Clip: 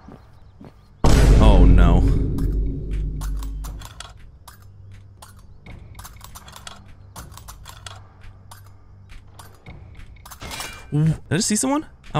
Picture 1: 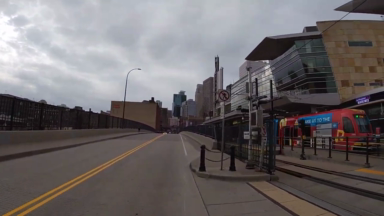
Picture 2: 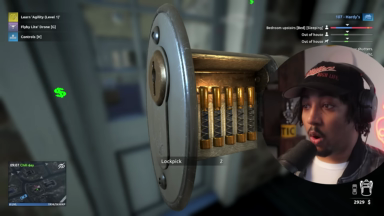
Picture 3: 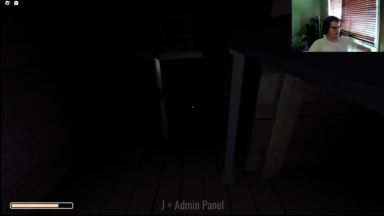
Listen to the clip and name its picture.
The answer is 2